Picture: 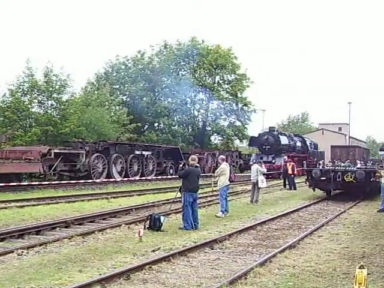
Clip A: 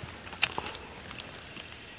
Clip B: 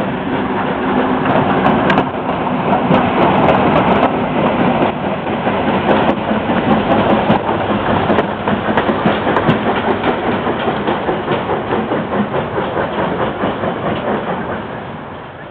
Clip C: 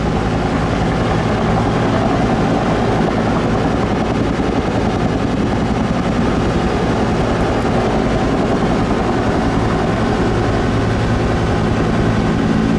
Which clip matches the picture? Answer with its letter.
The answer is B